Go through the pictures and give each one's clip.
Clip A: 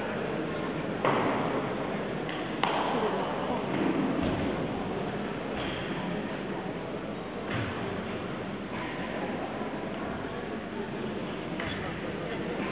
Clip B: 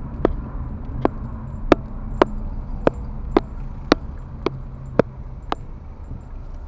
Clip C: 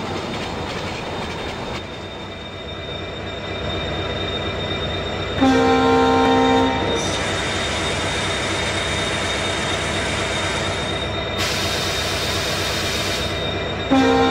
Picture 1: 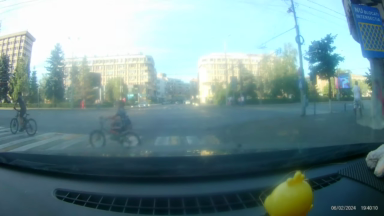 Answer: B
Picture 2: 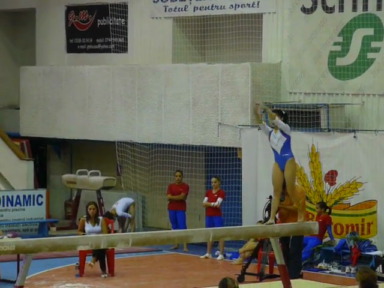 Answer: A